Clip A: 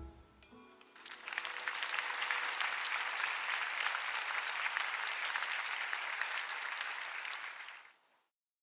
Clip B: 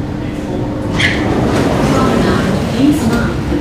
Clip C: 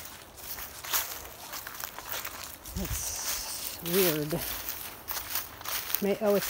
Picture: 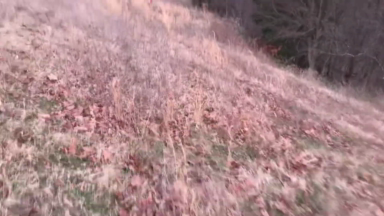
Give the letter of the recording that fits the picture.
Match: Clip C